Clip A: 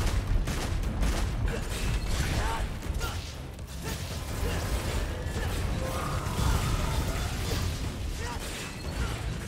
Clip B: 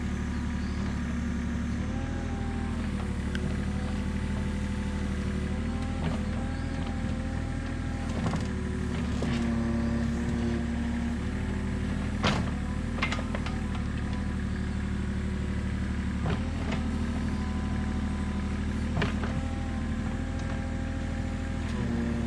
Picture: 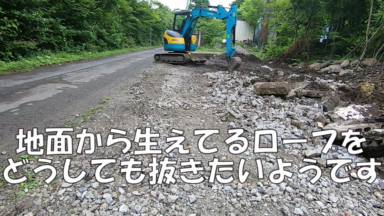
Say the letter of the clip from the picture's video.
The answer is B